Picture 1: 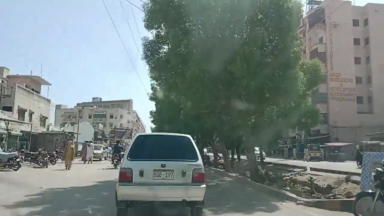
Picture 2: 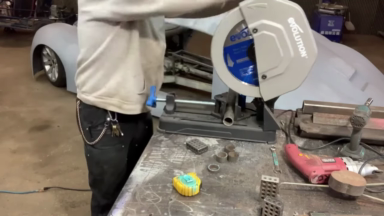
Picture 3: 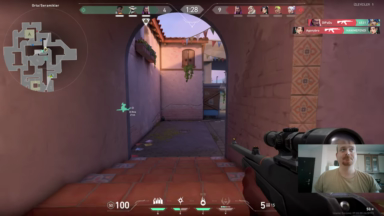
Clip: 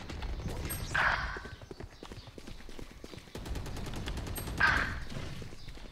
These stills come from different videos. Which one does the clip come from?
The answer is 3